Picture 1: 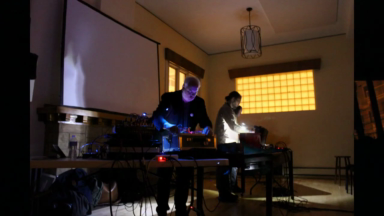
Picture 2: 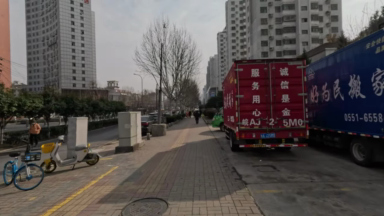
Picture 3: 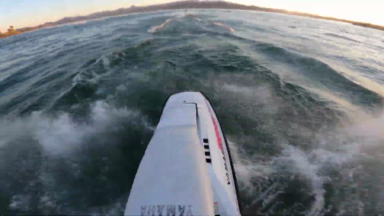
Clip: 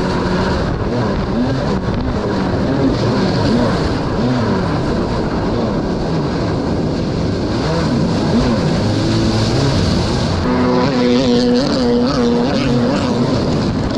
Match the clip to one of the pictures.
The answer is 3